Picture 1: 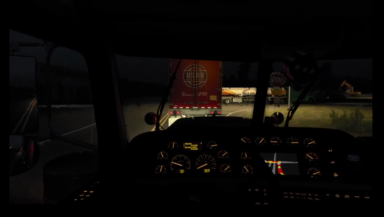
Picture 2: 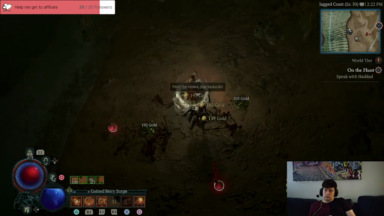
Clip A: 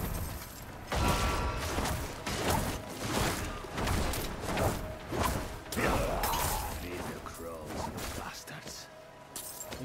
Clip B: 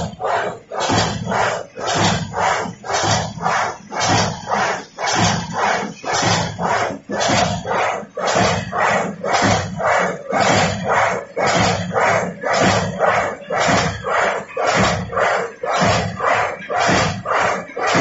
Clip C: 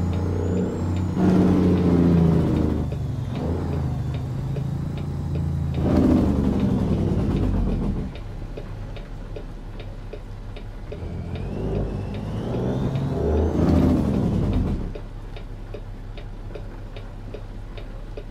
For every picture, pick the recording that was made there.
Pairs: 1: C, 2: A